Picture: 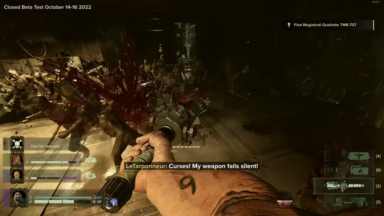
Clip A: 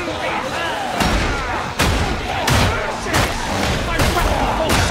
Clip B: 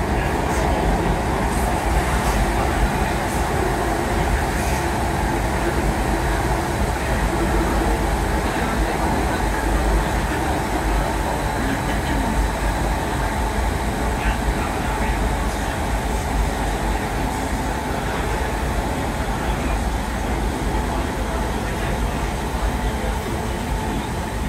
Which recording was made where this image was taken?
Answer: A